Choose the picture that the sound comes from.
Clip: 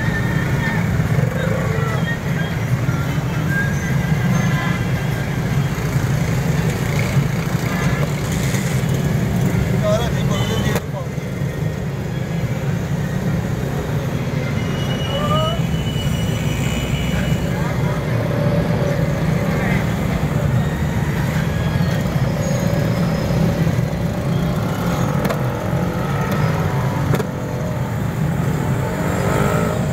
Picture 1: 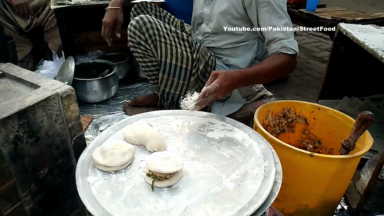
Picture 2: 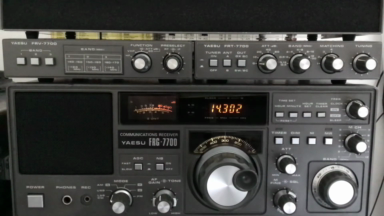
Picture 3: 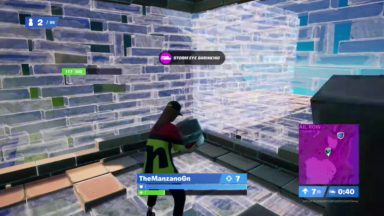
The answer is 1